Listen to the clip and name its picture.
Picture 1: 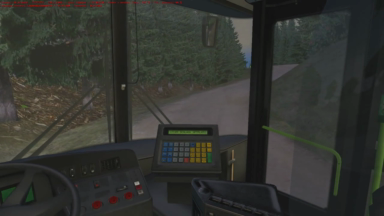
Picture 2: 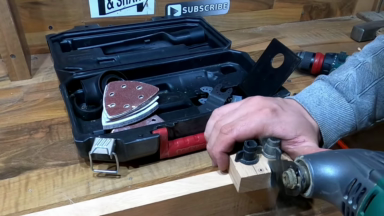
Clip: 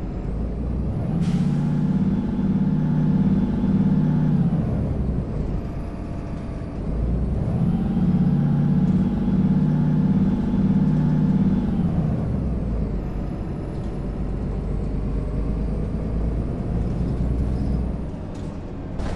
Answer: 1